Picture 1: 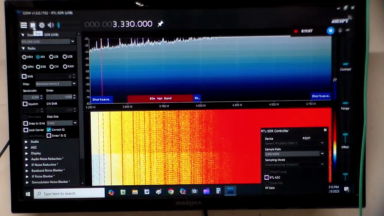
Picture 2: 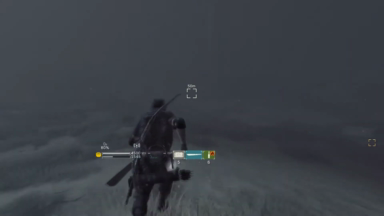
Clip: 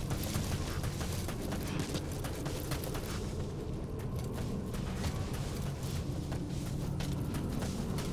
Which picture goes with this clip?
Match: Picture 2